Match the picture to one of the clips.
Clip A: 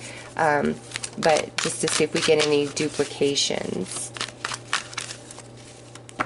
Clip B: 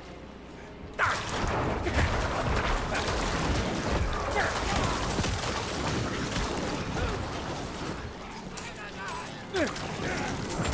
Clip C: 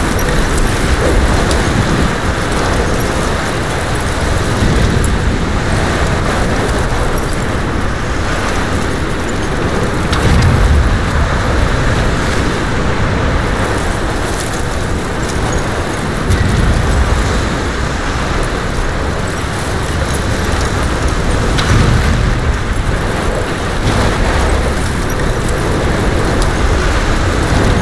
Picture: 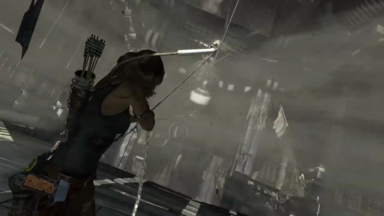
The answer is C